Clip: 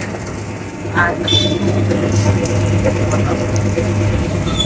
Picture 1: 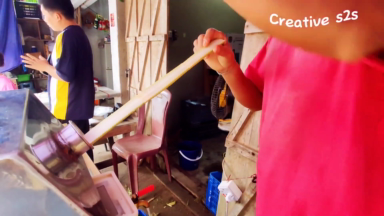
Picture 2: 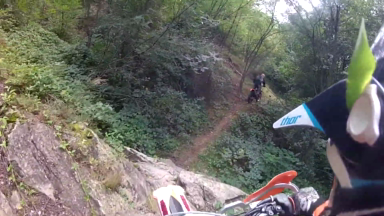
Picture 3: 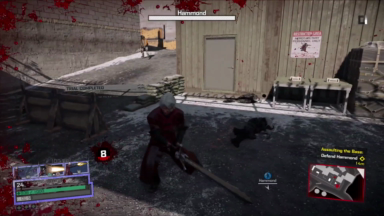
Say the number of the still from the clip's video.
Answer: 1